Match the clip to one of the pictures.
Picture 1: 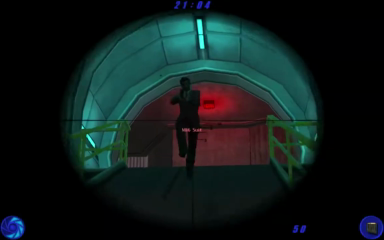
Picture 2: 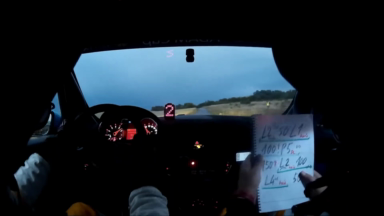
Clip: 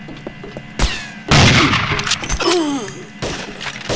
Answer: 1